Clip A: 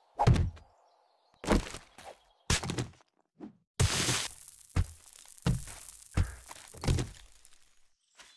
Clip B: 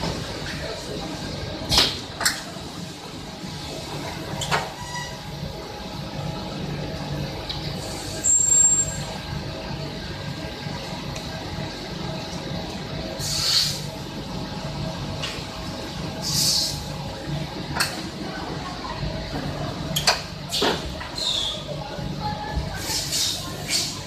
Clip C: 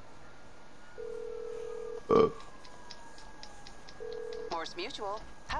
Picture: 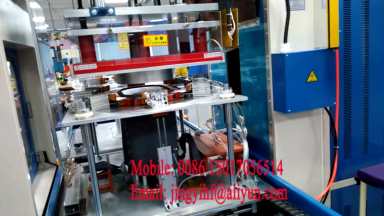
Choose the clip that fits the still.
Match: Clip B